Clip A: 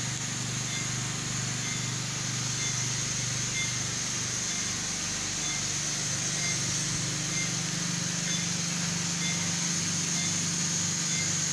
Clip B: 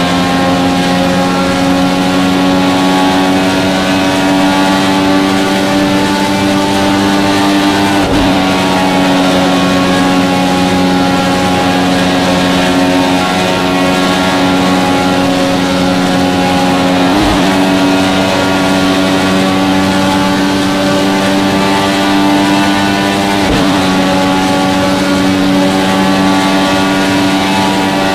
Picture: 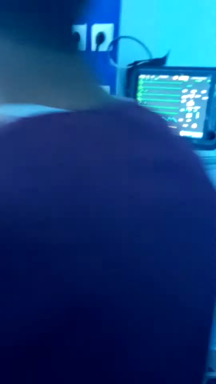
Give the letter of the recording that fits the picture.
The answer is A